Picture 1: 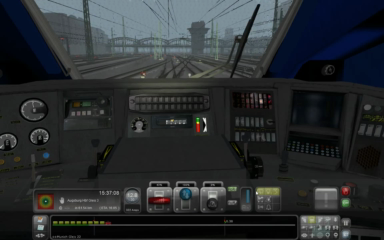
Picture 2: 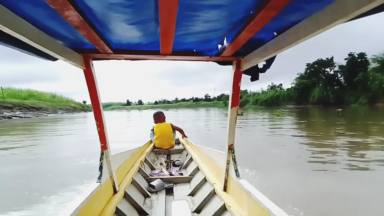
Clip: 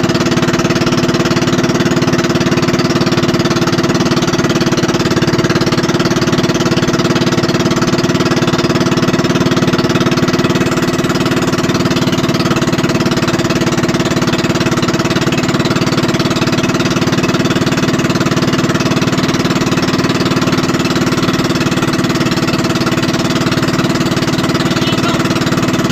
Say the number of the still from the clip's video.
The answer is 2